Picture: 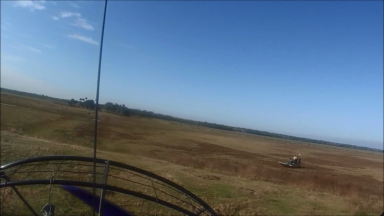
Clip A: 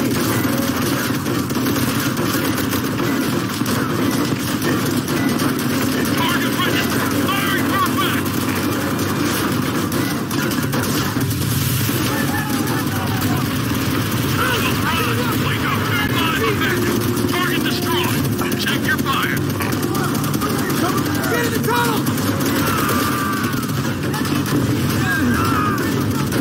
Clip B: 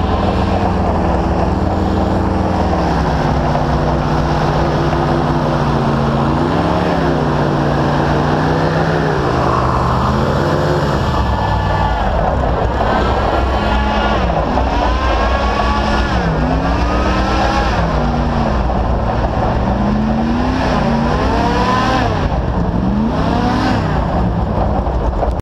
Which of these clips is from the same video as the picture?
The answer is B